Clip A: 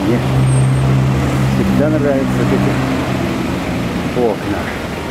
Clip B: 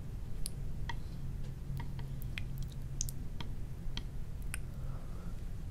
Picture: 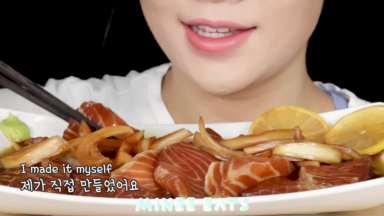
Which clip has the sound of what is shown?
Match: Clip B